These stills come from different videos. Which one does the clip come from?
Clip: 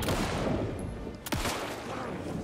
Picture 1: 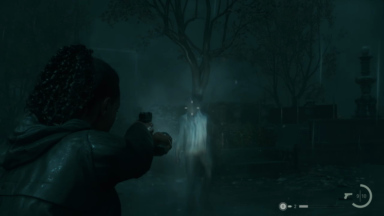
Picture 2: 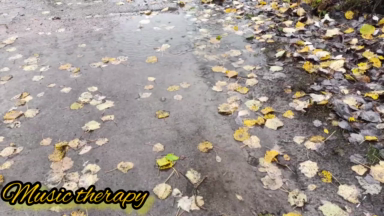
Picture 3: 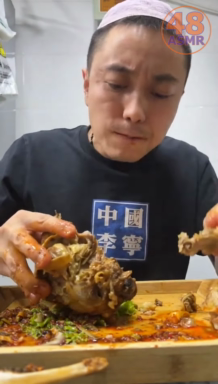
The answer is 1